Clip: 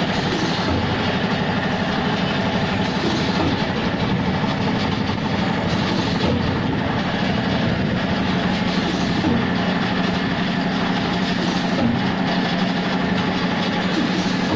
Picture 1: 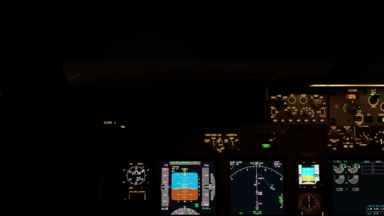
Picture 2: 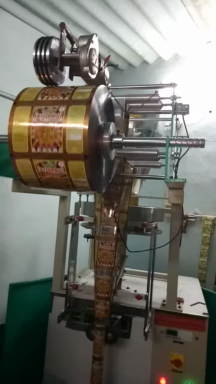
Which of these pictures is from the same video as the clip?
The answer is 2